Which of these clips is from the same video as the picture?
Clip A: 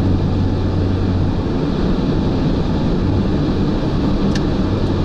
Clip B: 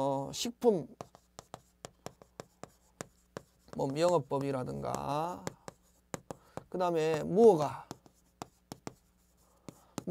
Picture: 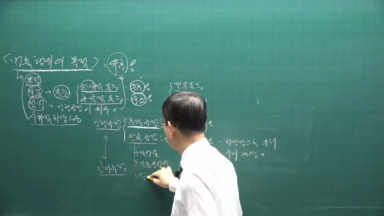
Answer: B